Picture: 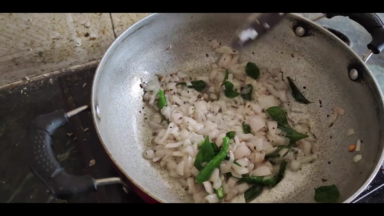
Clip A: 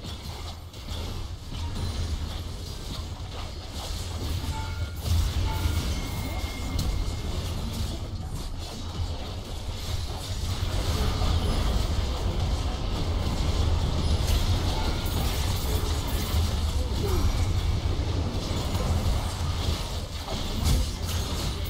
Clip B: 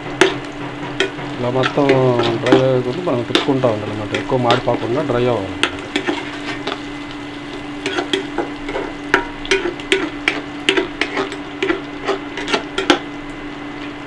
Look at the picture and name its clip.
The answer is B